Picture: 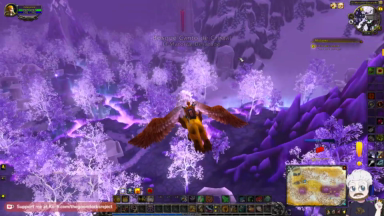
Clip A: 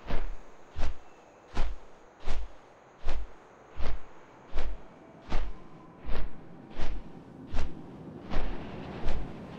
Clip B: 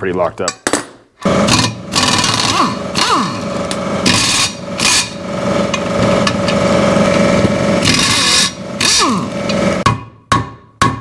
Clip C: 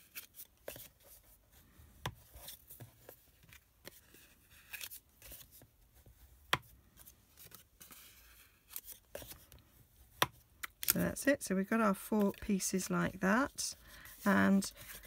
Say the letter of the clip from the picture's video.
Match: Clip A